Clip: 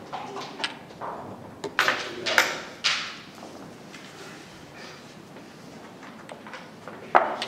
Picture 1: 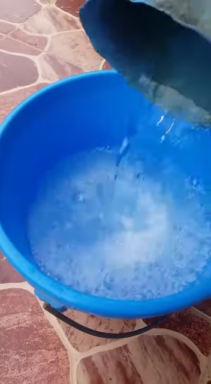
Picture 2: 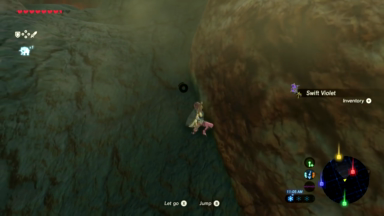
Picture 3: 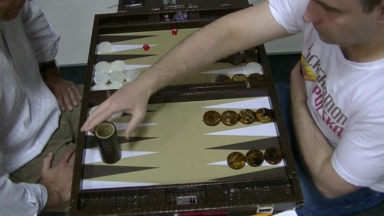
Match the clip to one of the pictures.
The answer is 3